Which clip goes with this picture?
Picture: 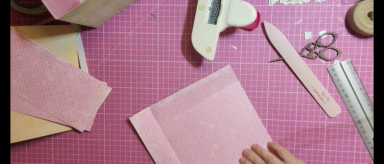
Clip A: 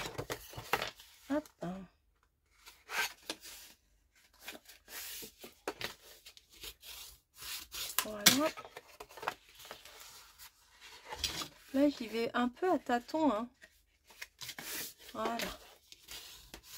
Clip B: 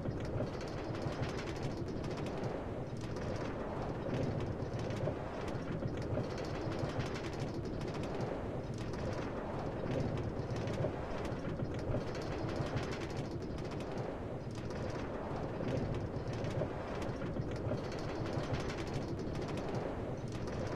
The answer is A